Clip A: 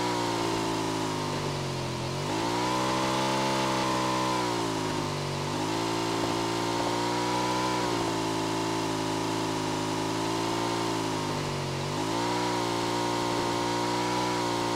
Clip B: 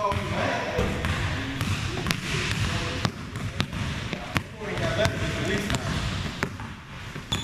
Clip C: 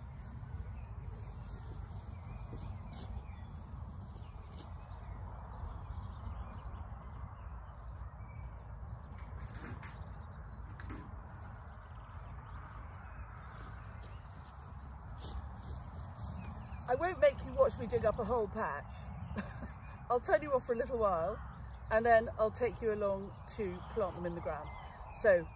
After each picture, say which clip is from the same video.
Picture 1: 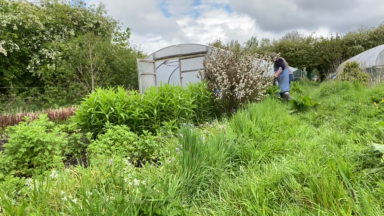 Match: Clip C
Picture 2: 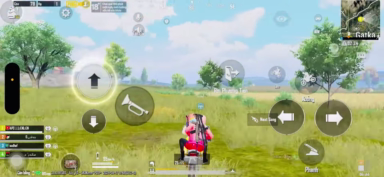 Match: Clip A